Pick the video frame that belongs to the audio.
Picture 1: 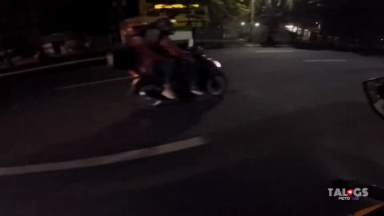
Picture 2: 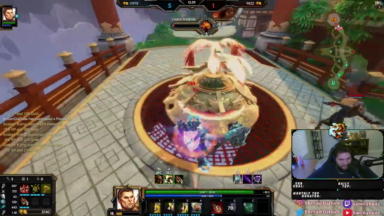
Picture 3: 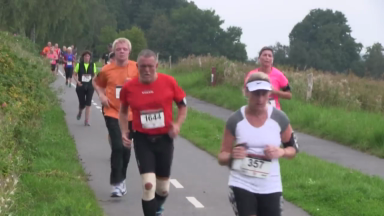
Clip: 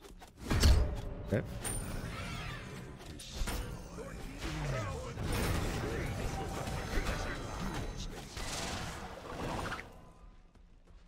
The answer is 2